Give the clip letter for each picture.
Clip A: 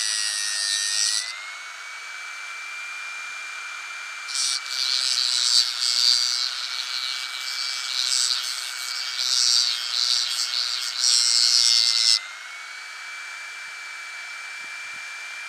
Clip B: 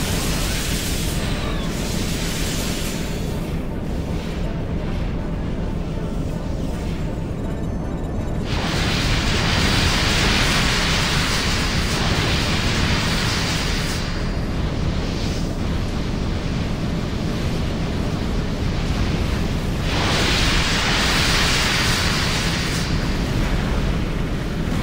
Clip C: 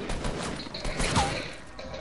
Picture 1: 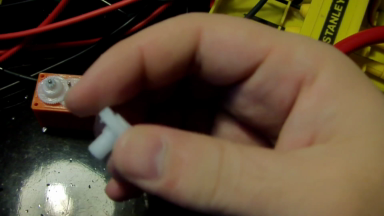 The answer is A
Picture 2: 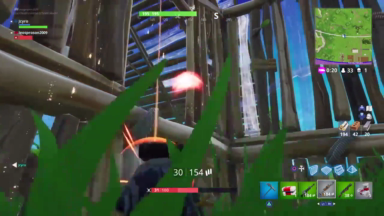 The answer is C